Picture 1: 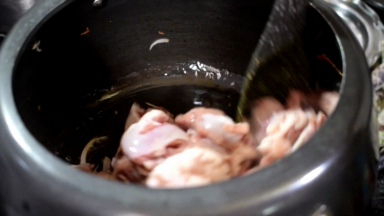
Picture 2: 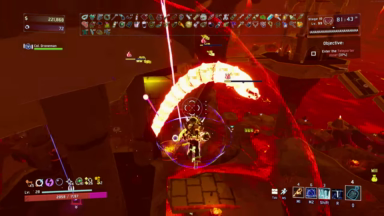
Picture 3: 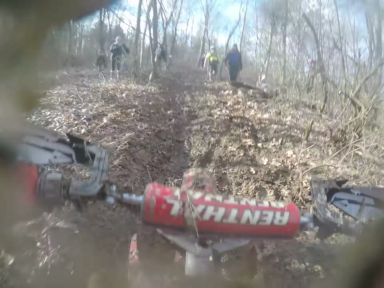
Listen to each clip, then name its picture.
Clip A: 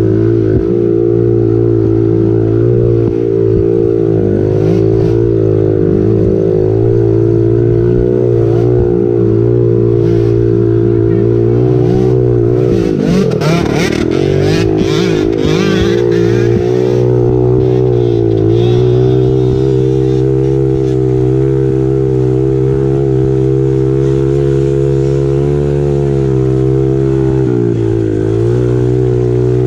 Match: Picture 3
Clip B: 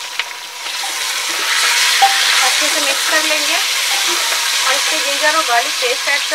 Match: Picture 1